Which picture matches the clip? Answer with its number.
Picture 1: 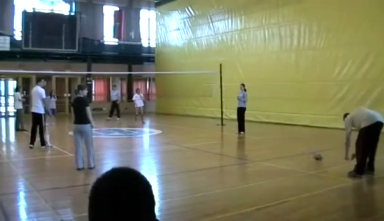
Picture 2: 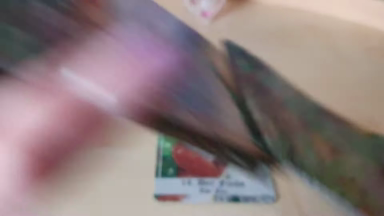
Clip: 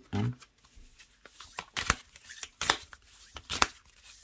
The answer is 2